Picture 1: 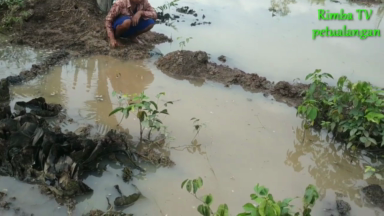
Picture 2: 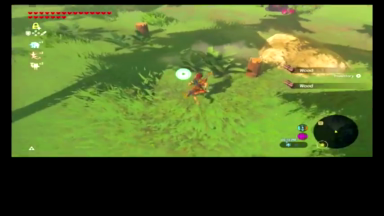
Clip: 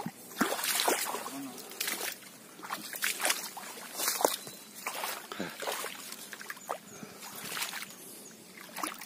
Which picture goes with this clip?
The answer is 1